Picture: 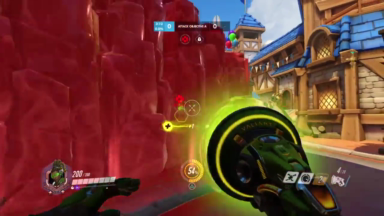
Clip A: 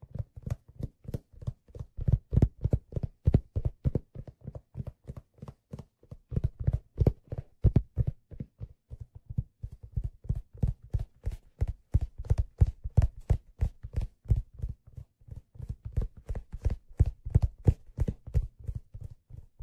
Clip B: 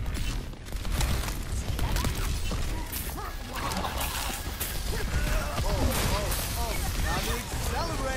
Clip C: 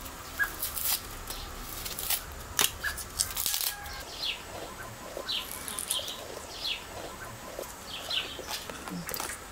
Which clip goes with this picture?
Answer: B